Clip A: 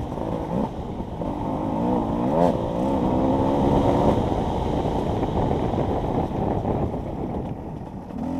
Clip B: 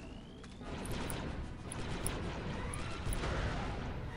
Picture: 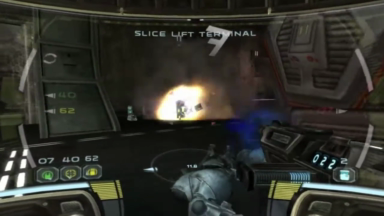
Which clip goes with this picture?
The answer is B